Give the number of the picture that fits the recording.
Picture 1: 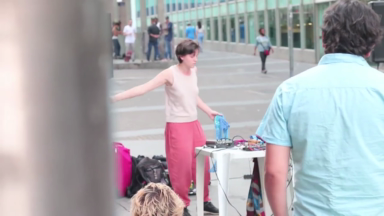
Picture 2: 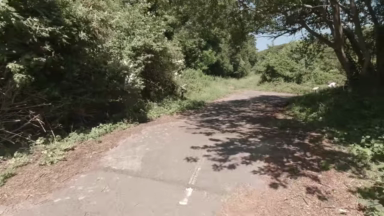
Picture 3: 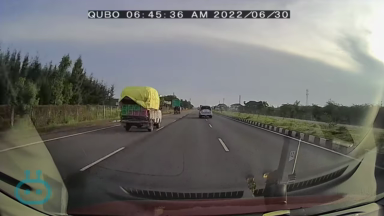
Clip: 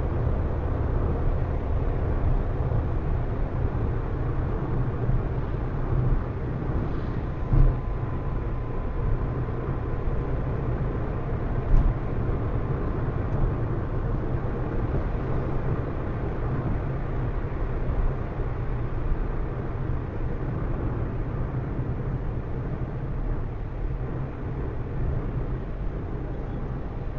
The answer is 3